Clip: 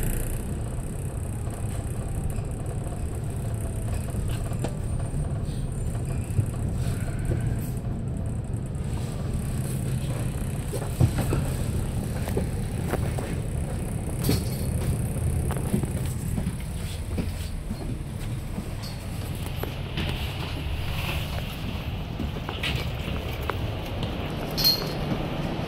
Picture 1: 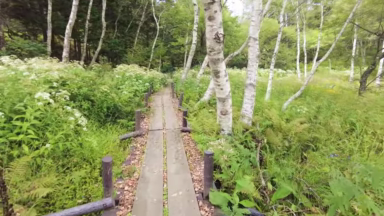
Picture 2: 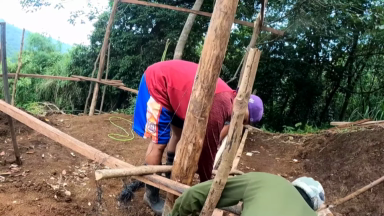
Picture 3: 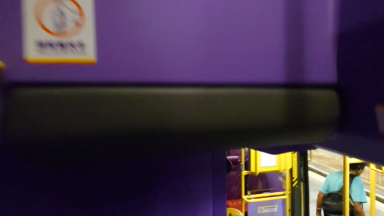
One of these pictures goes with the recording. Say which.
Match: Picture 3